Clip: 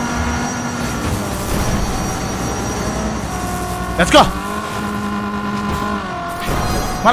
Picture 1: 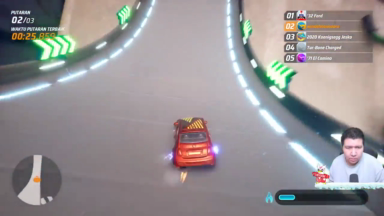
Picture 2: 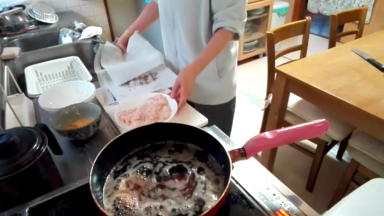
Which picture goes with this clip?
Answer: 1